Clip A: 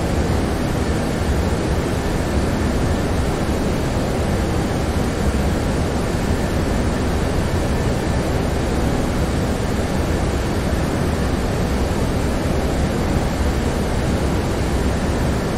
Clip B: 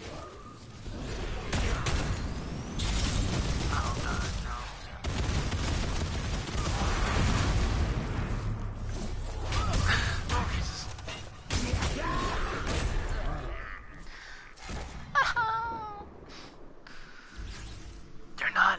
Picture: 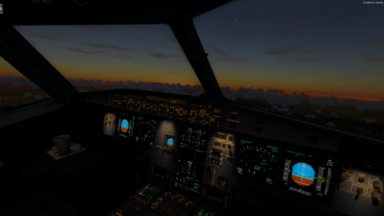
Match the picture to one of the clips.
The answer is A